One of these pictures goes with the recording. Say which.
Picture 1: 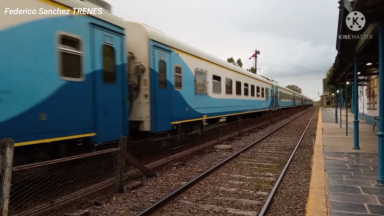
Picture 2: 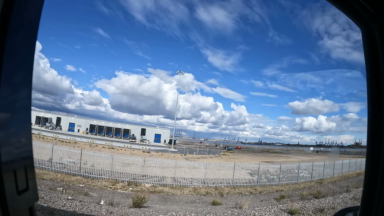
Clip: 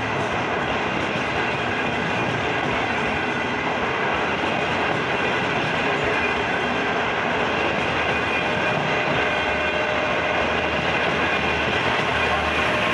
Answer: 1